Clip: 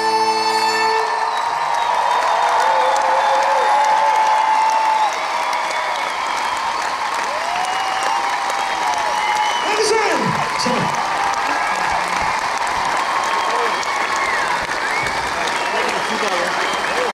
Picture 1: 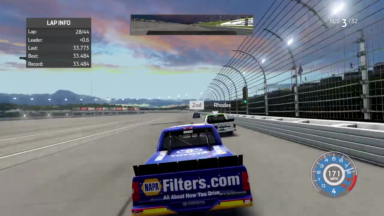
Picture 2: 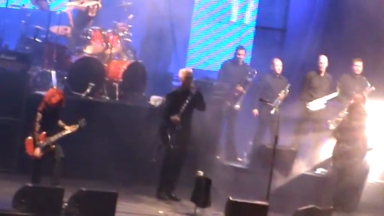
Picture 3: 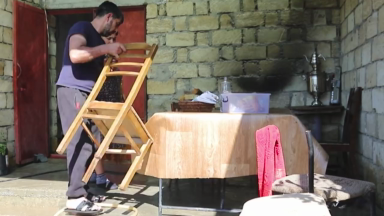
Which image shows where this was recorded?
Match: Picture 2